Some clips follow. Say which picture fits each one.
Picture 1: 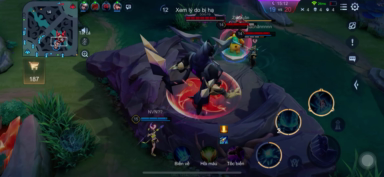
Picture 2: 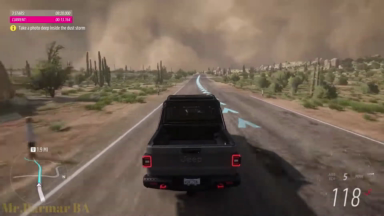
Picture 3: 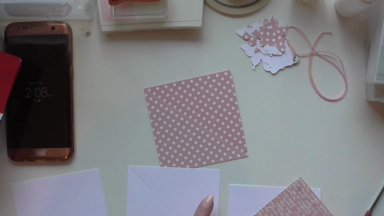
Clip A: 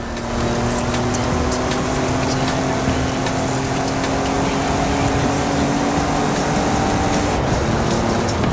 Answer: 2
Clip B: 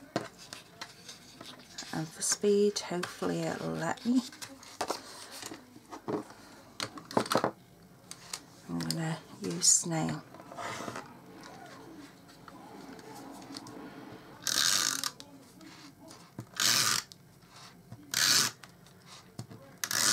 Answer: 3